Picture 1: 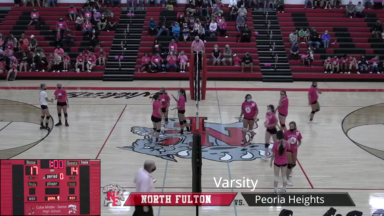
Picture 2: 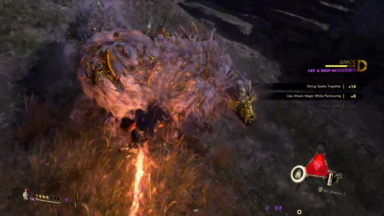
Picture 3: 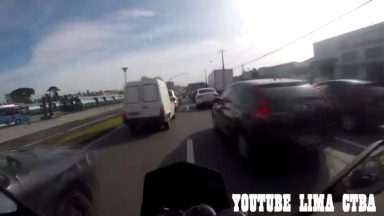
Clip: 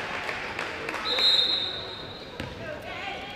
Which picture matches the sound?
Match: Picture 1